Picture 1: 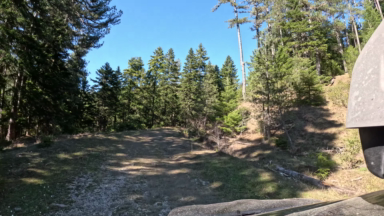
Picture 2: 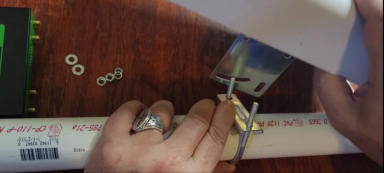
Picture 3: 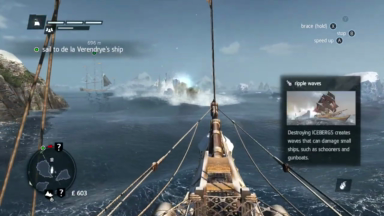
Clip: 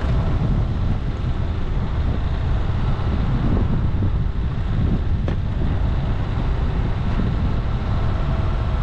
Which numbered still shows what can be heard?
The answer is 1